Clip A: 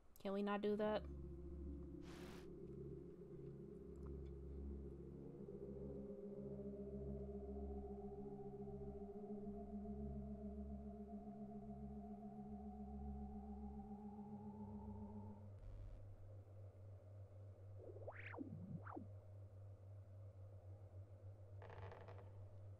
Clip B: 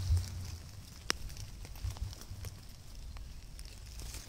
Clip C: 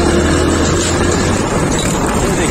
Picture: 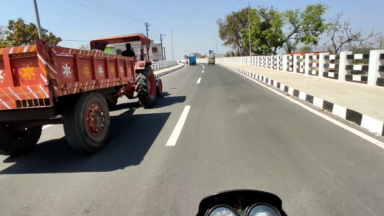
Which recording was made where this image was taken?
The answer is C